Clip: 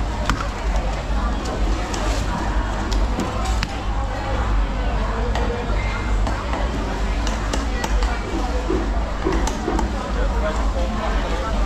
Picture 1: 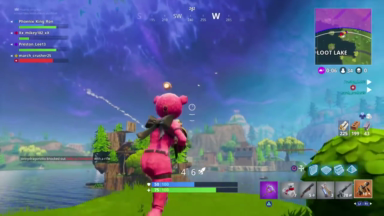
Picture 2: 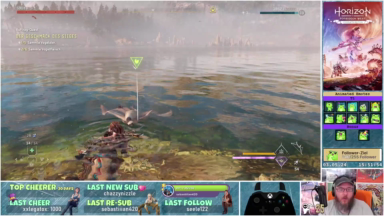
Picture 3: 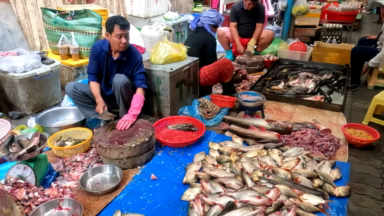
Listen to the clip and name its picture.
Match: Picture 3